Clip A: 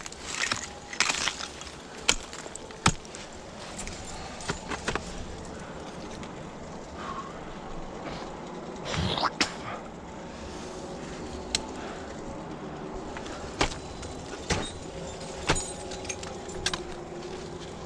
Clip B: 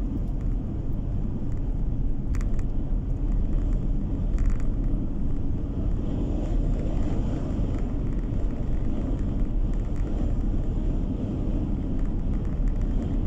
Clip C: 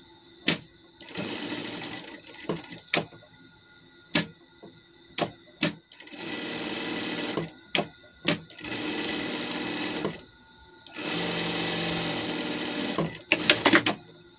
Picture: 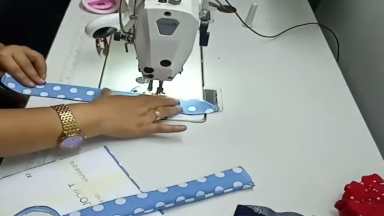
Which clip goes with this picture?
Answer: C